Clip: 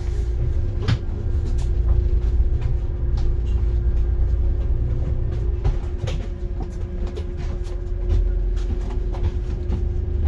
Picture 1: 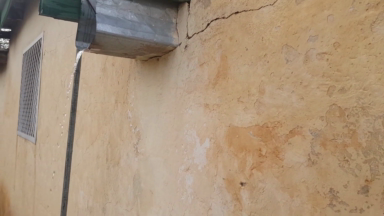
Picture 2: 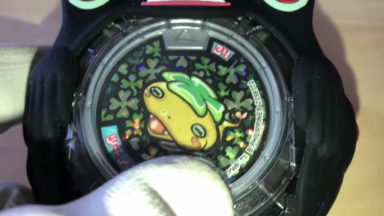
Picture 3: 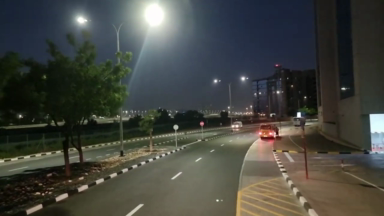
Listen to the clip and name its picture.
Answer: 3